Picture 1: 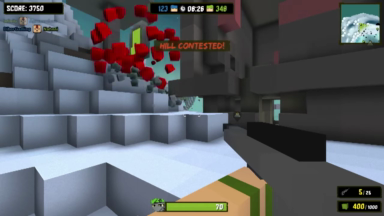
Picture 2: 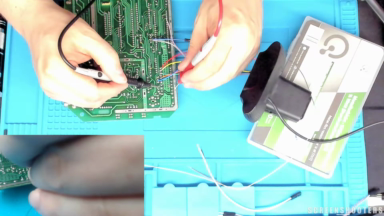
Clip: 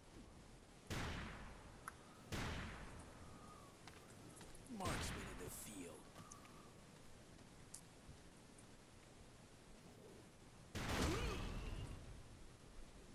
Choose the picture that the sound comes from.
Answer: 1